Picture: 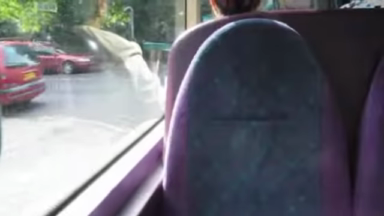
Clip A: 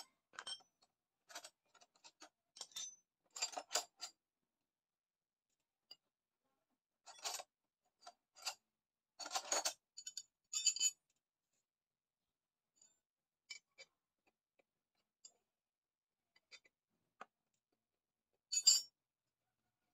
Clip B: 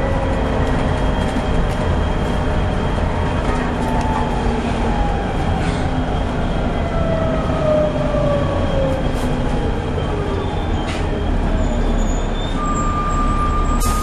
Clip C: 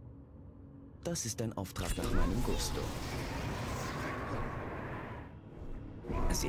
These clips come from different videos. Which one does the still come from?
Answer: B